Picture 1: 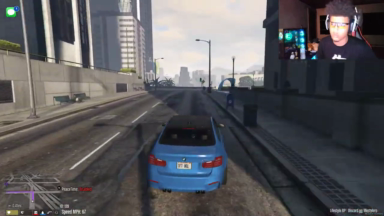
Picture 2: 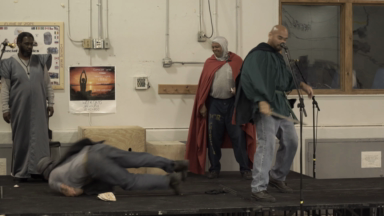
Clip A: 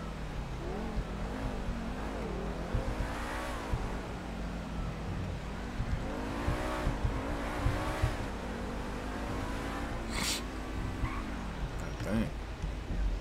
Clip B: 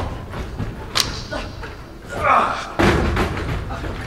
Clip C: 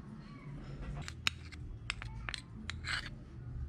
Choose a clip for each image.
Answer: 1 A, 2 B